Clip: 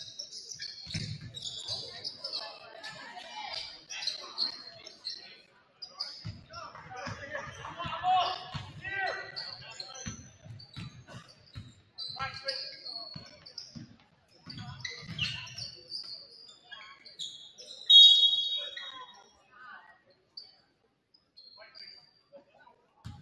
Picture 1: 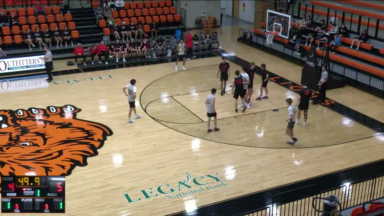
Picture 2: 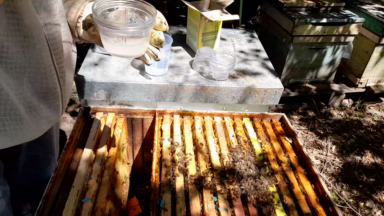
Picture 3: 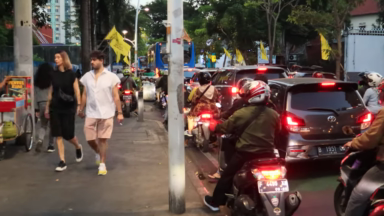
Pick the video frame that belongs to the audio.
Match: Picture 1